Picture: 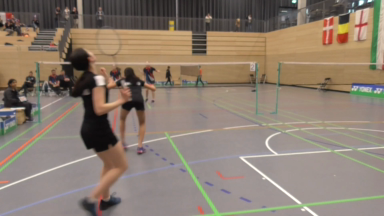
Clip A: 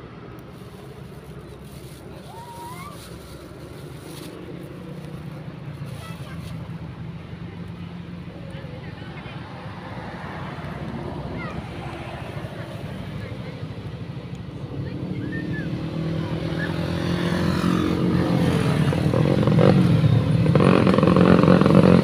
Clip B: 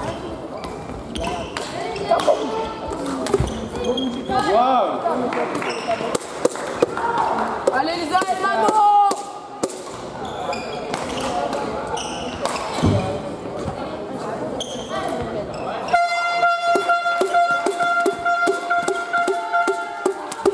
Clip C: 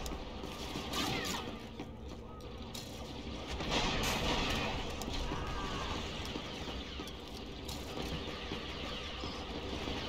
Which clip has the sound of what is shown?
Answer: B